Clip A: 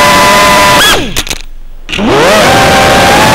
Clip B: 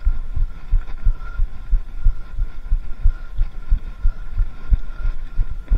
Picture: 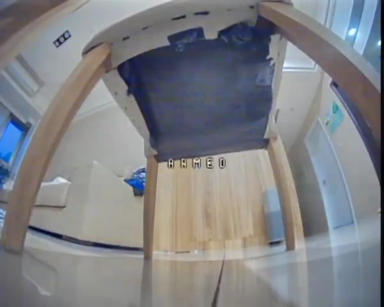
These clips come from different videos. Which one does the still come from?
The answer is A